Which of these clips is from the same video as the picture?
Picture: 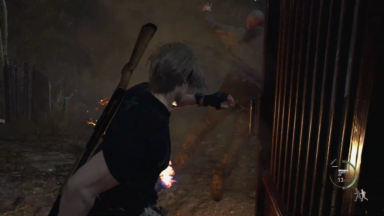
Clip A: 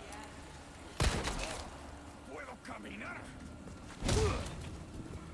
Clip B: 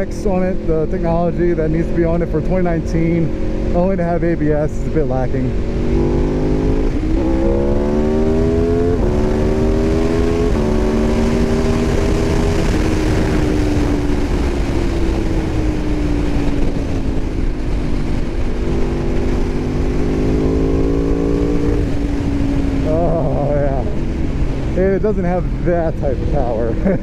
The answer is A